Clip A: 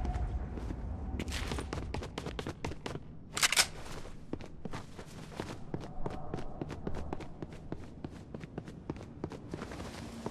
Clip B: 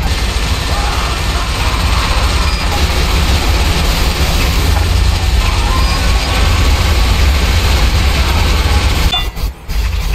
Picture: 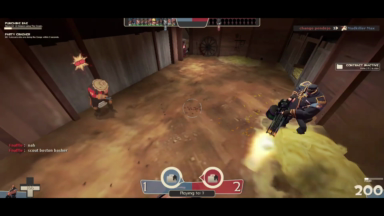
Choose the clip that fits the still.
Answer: B